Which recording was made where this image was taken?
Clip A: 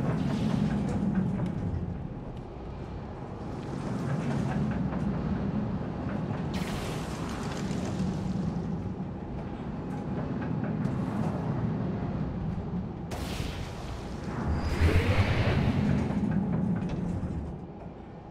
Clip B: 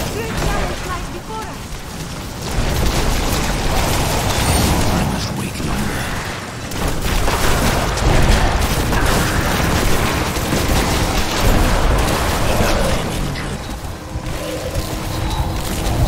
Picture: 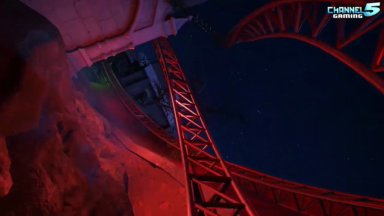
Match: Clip A